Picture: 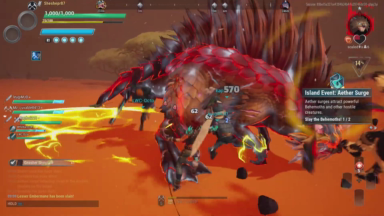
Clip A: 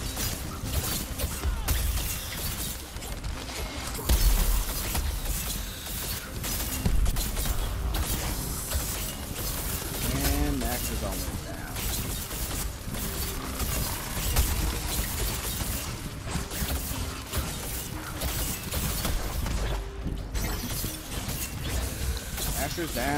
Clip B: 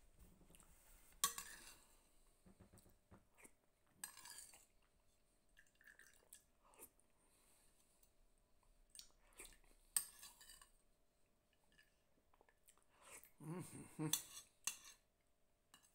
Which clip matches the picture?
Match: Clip A